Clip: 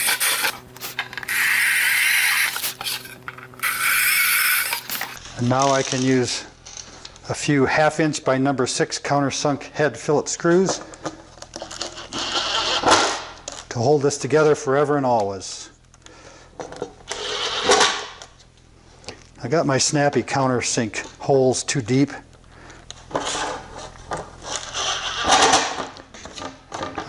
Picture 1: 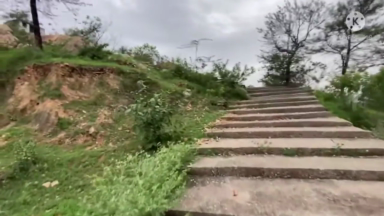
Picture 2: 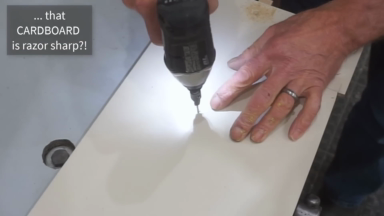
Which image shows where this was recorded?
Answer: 2